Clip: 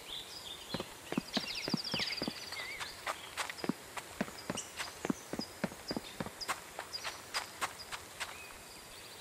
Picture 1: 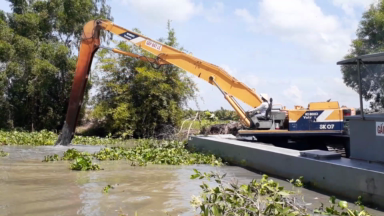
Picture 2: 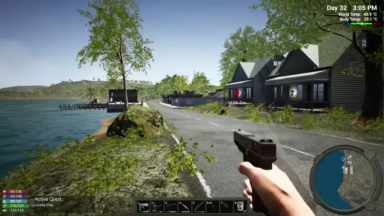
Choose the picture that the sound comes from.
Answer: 2